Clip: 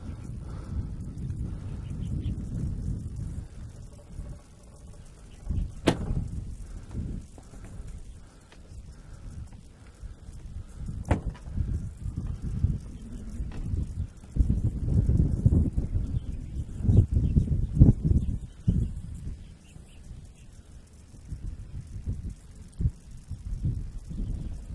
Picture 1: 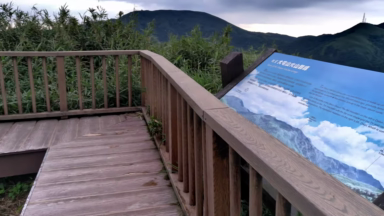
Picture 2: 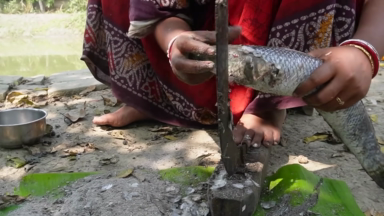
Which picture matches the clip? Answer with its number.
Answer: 1